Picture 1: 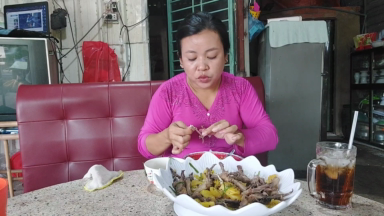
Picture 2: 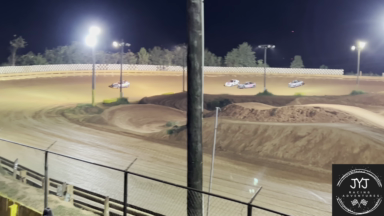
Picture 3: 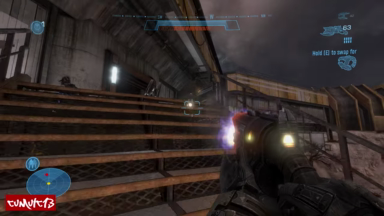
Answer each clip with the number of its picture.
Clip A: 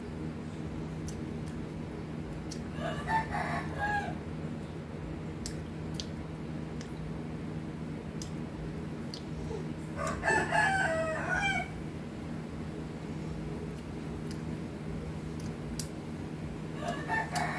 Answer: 1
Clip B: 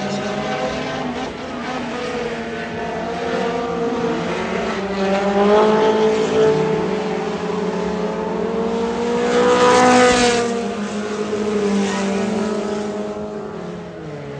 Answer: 2